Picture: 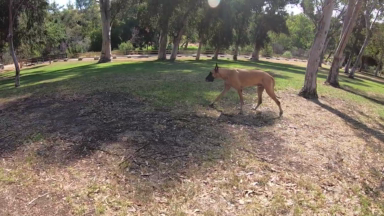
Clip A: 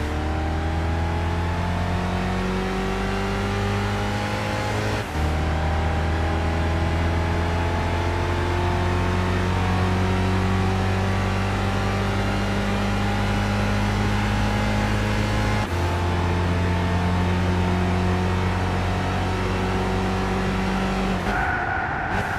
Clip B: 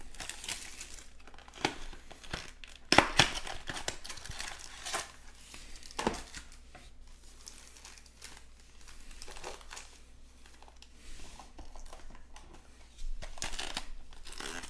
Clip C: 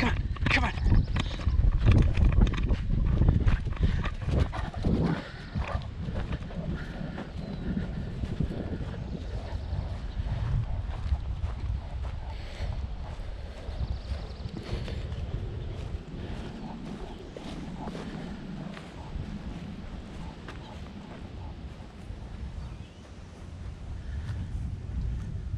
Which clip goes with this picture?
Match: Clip C